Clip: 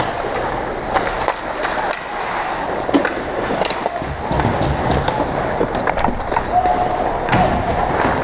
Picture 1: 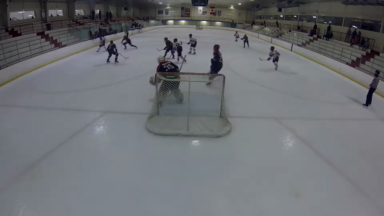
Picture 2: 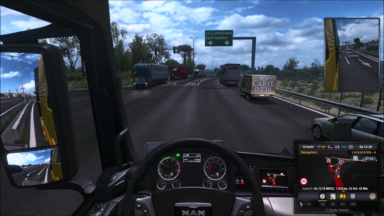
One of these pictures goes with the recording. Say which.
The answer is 1